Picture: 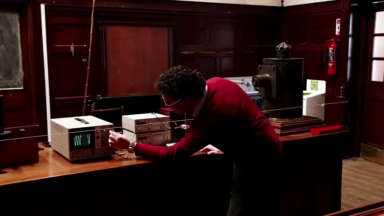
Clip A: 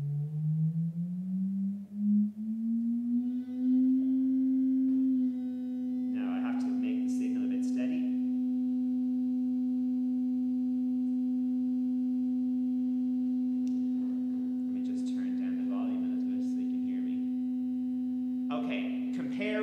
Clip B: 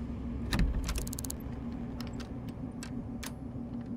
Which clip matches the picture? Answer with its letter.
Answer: A